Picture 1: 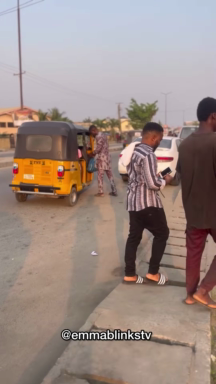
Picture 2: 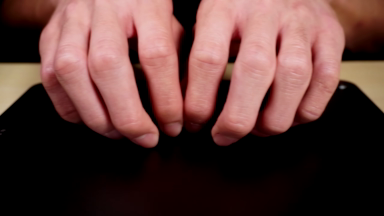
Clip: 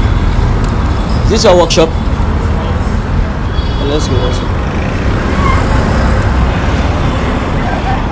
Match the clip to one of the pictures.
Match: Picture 1